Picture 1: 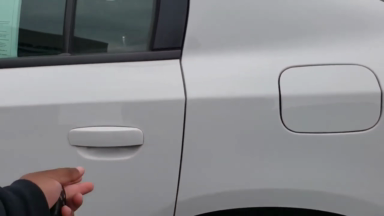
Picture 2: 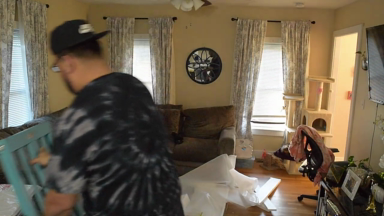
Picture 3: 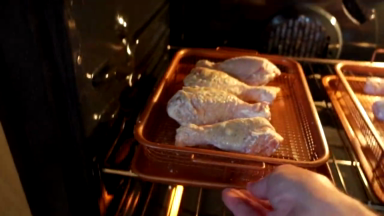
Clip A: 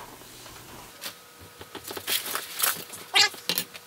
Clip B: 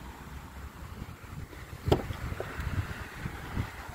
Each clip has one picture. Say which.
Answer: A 2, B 1